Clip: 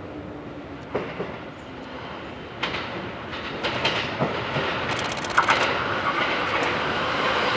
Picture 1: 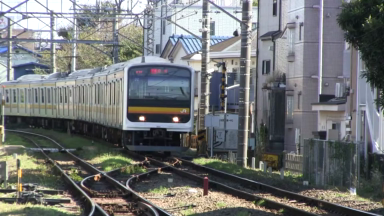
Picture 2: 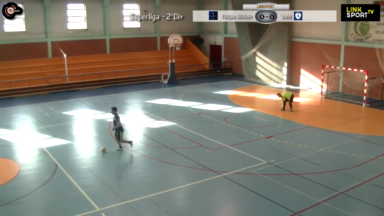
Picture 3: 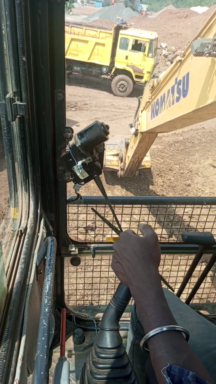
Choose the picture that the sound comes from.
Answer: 1